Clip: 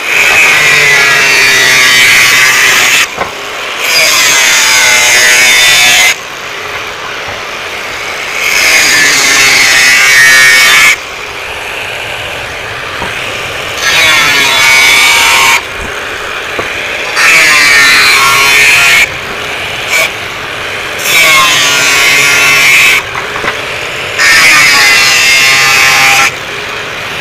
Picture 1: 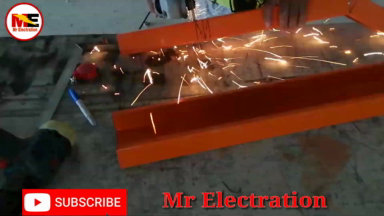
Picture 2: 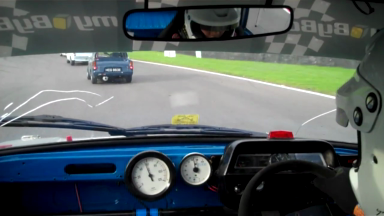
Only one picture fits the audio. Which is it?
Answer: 1